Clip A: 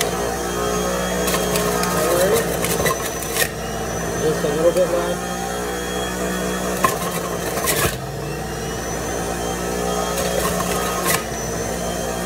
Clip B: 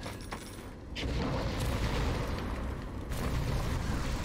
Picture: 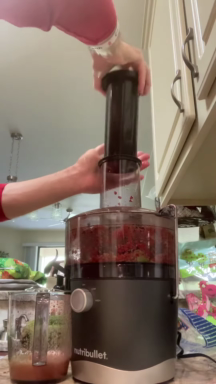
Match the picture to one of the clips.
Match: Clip A